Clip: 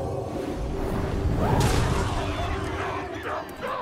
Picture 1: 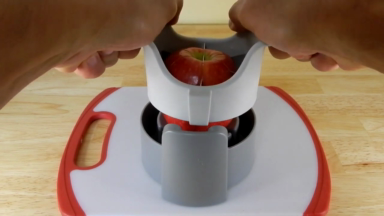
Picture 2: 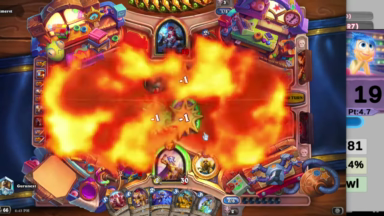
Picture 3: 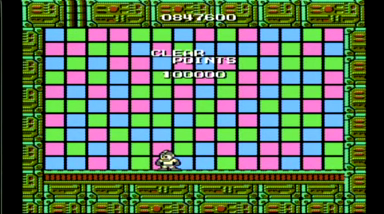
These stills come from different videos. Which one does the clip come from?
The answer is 2